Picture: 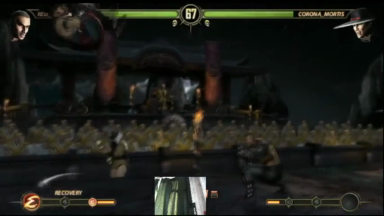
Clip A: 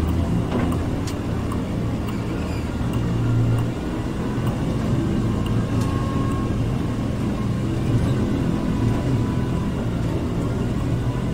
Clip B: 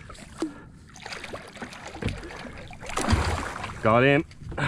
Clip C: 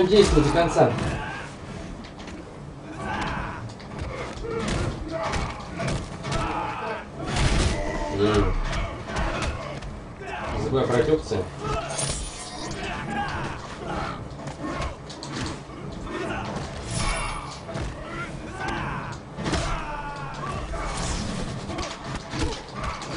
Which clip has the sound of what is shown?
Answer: C